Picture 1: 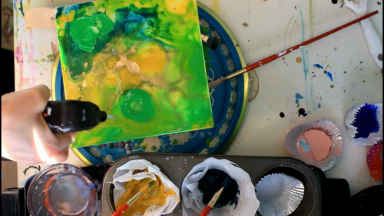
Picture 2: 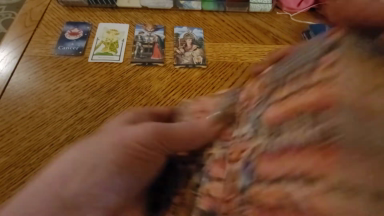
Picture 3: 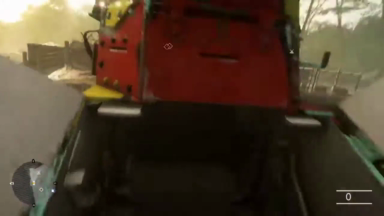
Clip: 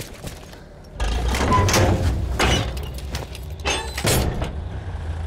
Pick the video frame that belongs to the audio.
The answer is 3